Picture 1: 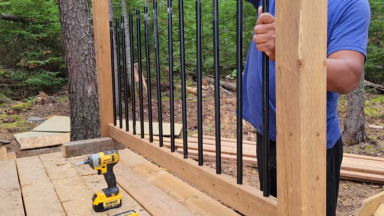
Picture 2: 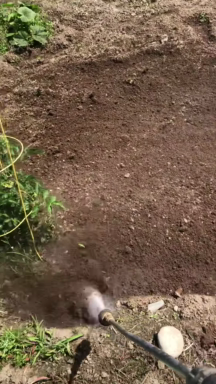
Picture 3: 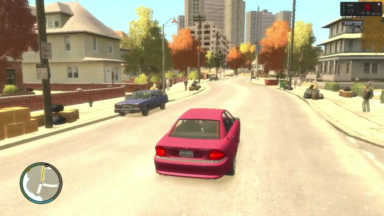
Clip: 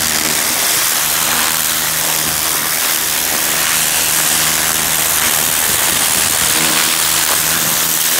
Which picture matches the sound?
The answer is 2